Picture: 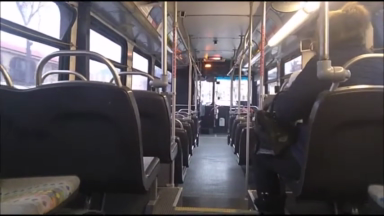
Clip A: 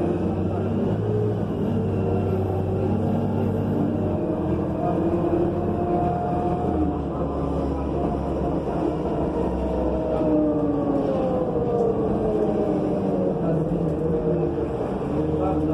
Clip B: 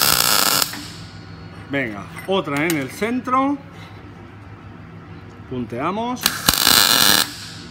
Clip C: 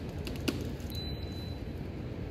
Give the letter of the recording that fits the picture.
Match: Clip A